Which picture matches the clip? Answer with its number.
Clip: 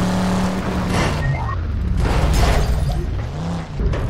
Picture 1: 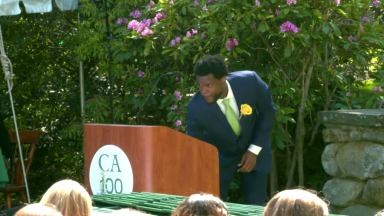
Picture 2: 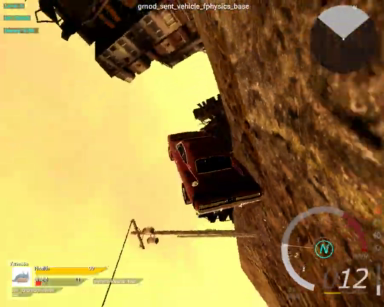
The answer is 2